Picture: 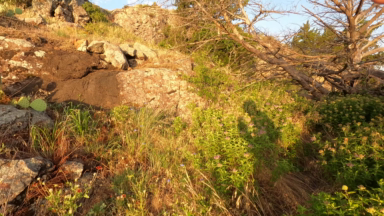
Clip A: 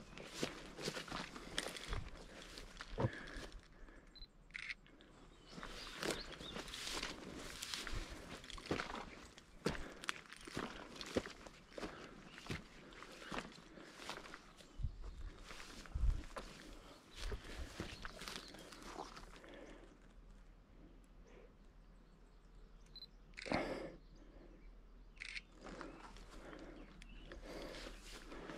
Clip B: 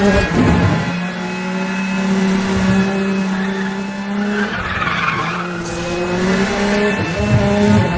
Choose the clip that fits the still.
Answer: A